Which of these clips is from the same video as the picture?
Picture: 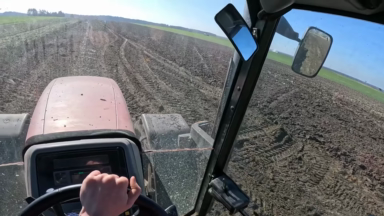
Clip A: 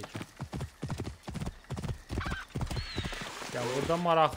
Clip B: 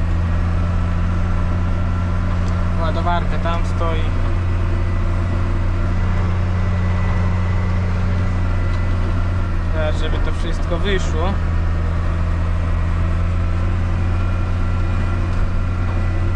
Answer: B